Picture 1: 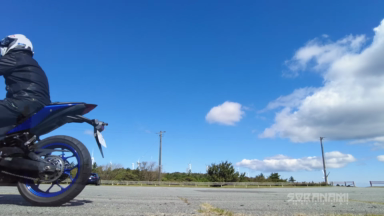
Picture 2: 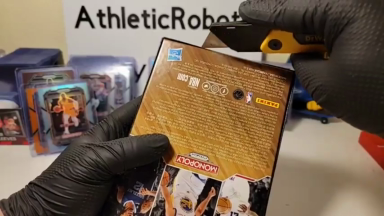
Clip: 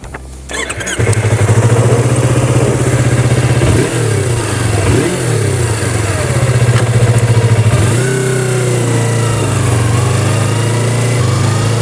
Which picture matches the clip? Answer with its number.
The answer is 1